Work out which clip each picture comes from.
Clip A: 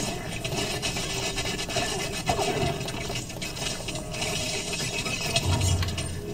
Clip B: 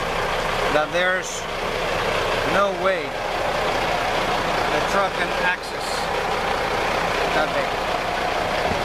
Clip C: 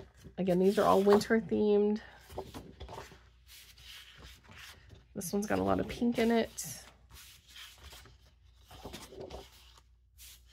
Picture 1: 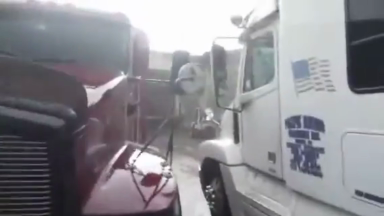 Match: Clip B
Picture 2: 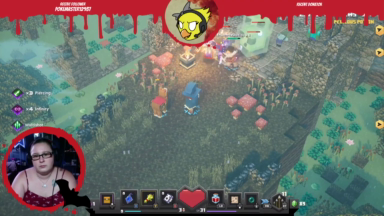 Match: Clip A